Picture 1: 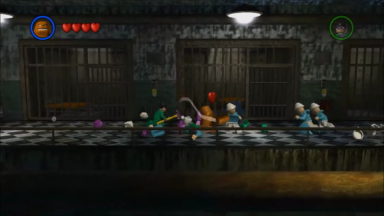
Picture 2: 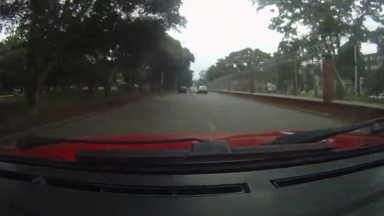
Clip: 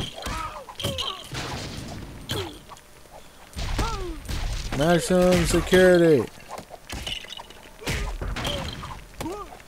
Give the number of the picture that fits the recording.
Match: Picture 1